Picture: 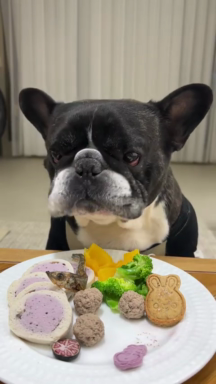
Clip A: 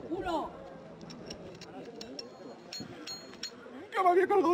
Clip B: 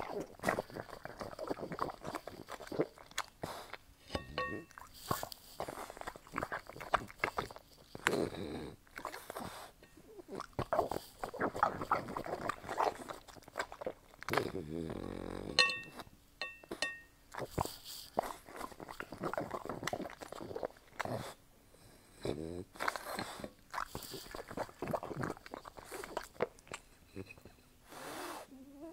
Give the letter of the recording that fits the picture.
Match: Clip B